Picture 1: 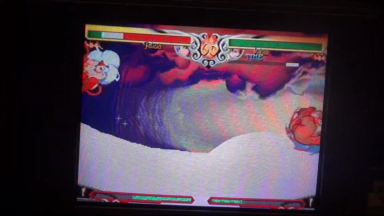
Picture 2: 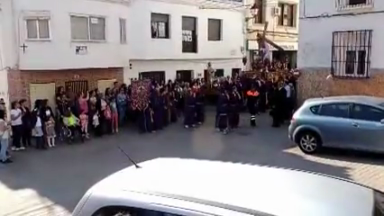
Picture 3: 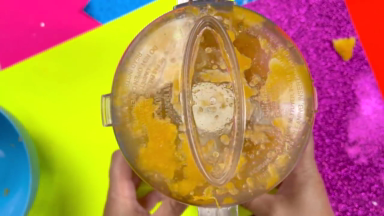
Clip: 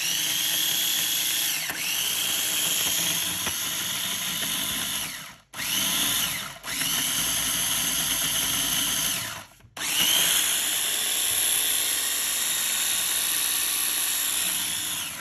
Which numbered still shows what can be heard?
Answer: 3